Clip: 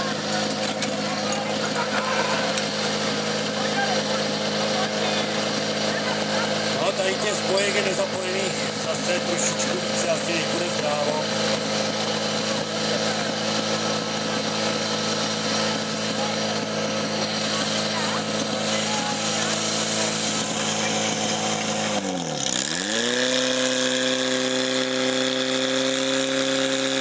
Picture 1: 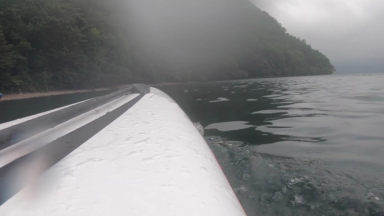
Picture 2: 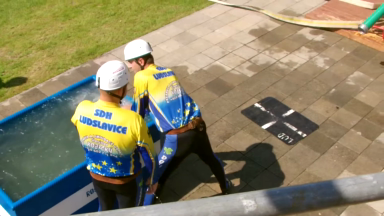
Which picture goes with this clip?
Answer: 2